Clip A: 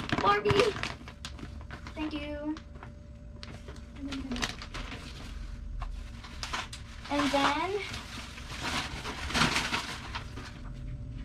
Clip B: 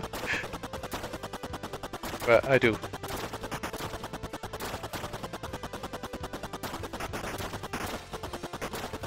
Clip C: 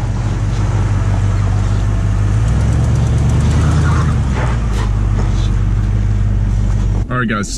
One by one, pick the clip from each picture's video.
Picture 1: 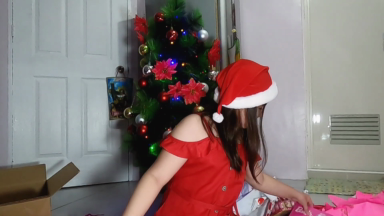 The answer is A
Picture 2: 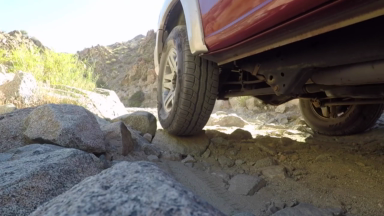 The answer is C